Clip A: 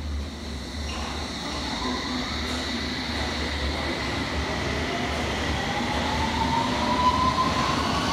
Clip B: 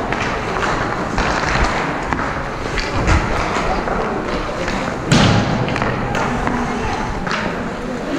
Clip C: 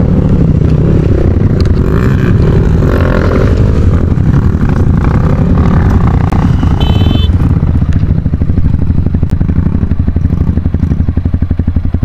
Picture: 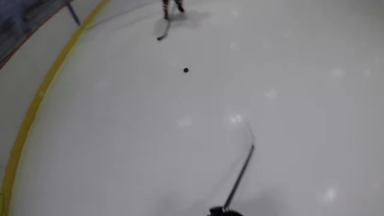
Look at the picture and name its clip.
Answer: B